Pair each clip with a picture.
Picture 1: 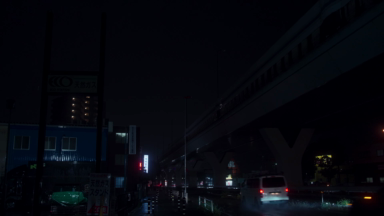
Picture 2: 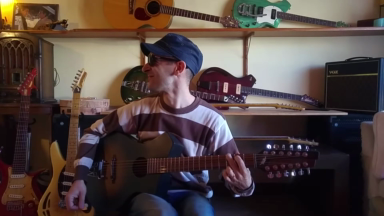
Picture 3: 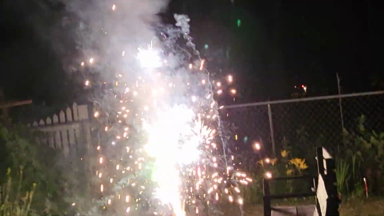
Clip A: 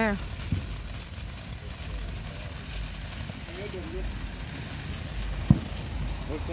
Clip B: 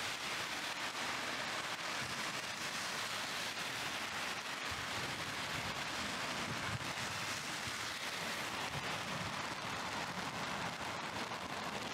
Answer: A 3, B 1